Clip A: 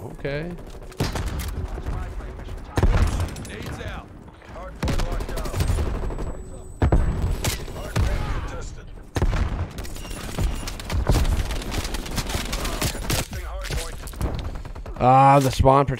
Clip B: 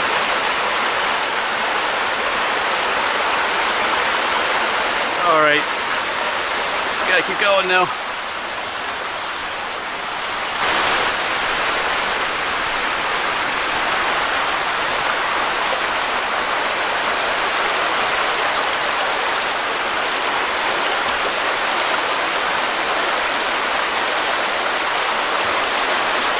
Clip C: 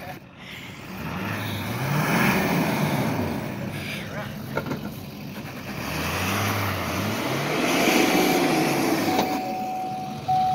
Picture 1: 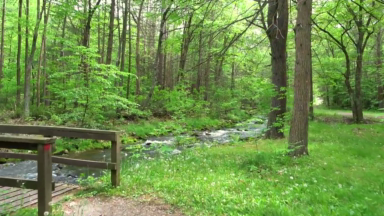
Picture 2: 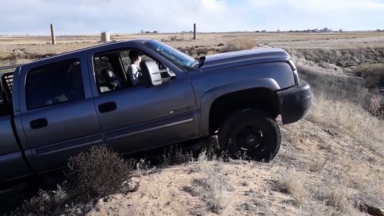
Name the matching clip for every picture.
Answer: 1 B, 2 C